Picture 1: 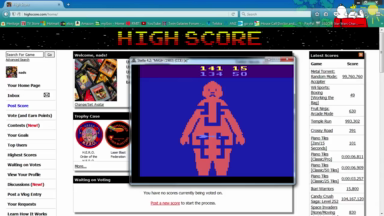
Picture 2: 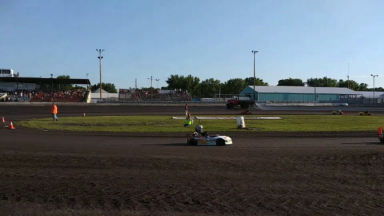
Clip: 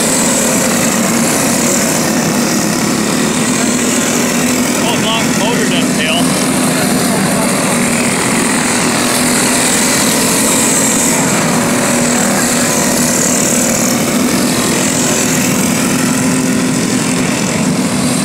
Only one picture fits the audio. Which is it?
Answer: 2